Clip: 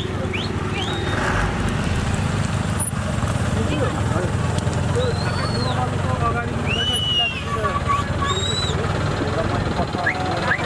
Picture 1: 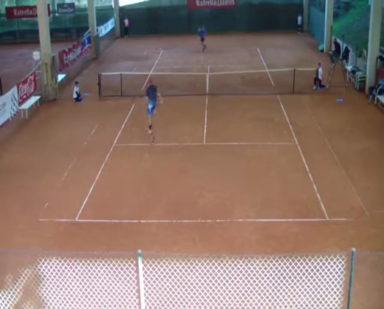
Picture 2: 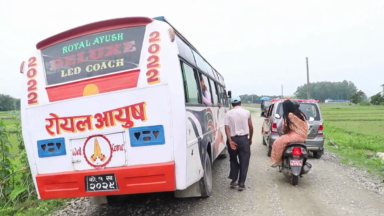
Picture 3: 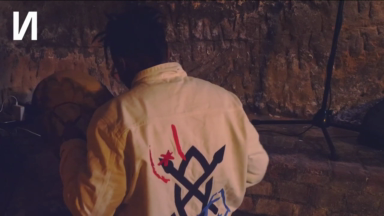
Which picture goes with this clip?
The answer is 2